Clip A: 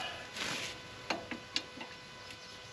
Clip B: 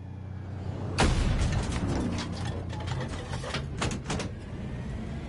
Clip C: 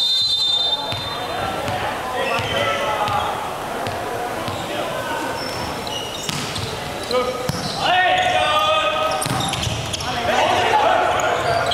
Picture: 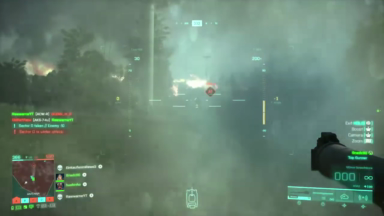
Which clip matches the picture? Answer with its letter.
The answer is B